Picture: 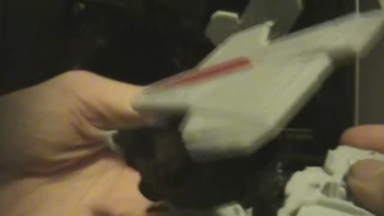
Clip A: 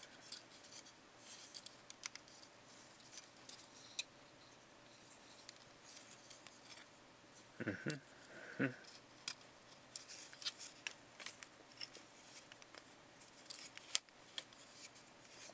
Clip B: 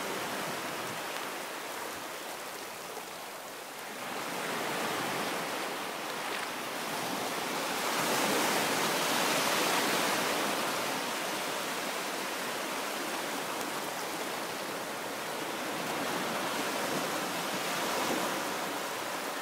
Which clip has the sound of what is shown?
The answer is A